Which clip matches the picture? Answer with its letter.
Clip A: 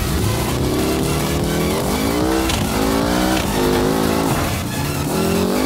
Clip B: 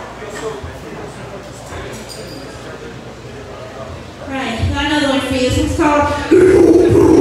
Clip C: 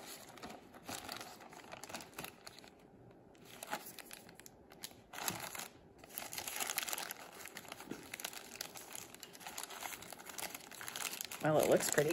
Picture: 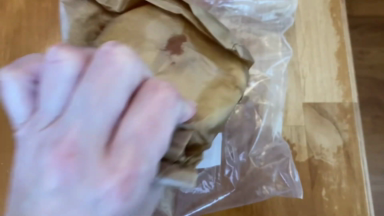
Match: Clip C